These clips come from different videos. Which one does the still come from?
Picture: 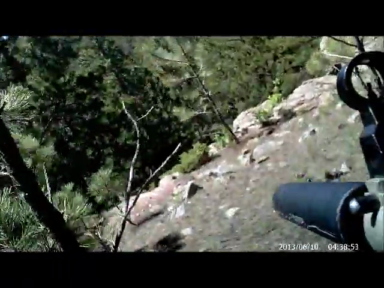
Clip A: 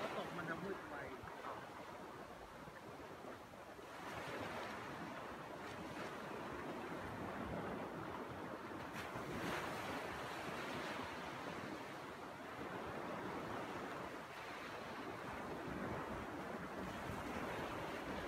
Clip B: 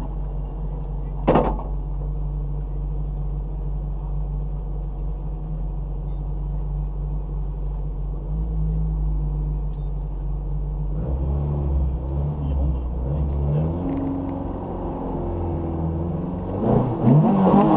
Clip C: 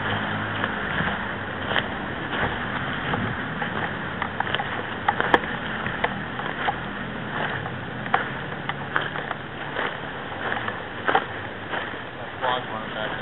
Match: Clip C